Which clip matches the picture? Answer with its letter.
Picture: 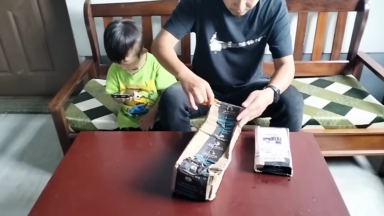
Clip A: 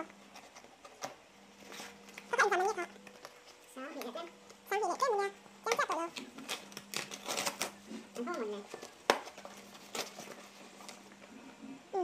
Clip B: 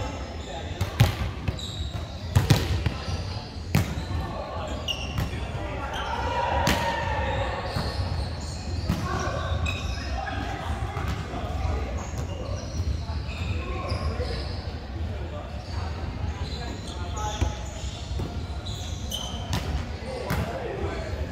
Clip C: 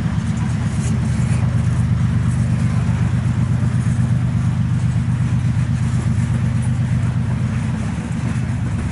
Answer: A